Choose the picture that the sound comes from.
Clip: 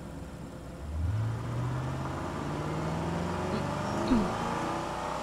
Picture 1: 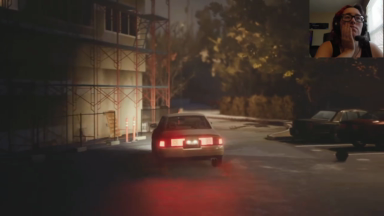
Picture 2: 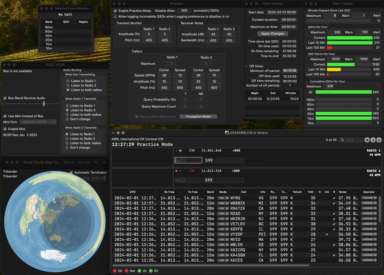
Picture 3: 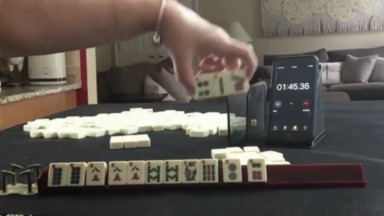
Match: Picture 1